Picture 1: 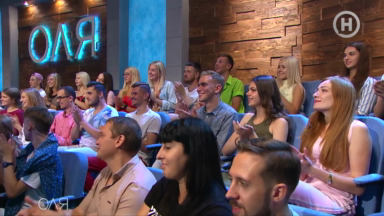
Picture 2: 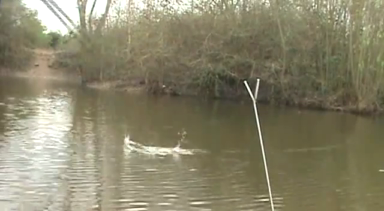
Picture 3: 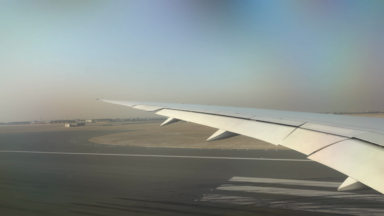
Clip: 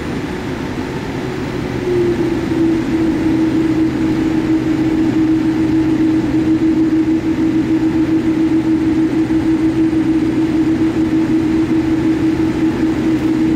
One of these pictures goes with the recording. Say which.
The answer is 3